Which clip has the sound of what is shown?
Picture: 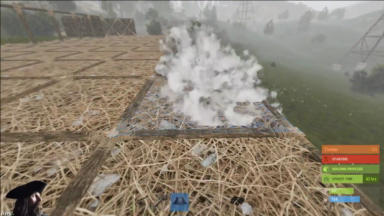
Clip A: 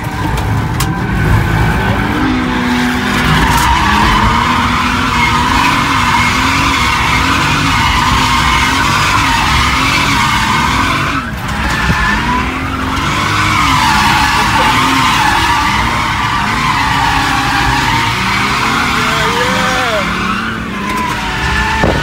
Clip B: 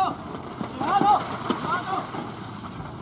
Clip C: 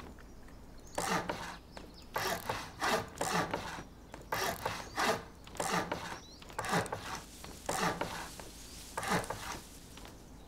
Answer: C